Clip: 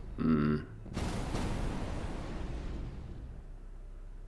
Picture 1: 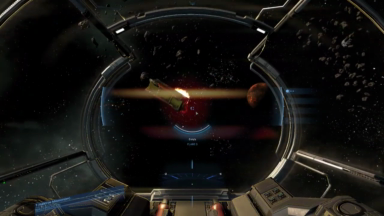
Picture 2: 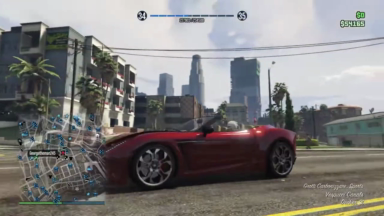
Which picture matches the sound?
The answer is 1